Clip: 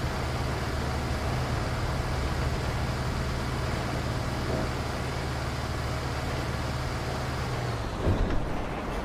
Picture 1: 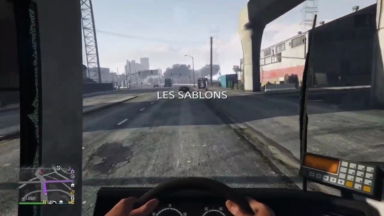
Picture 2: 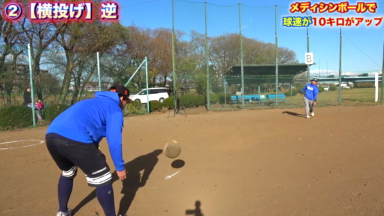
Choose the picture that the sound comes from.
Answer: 1